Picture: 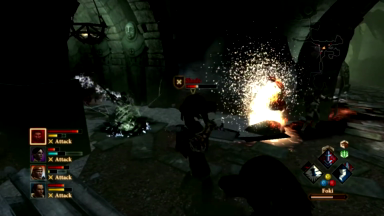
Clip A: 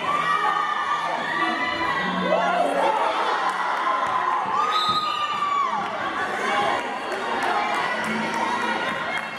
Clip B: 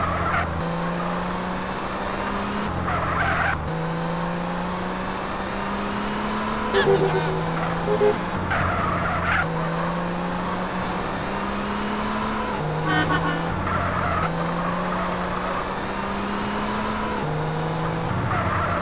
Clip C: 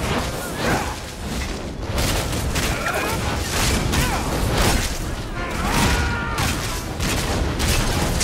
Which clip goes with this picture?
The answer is C